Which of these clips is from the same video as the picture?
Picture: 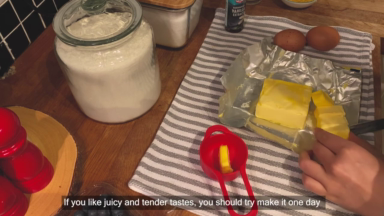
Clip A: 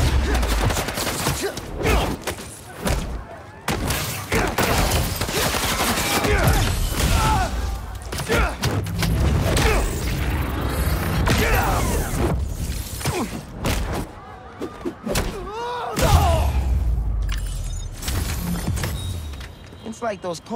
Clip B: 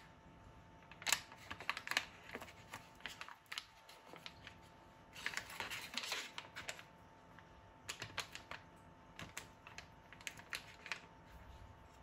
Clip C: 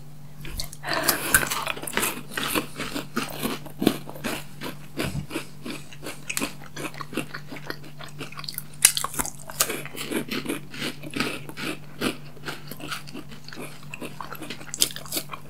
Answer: B